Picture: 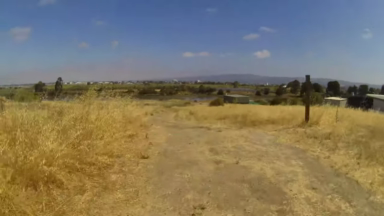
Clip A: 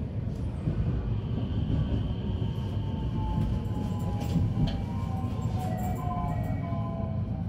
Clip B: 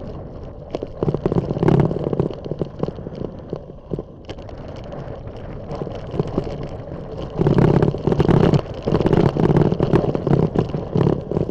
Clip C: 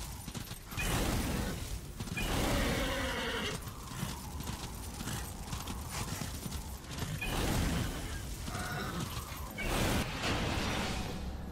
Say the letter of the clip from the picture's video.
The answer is B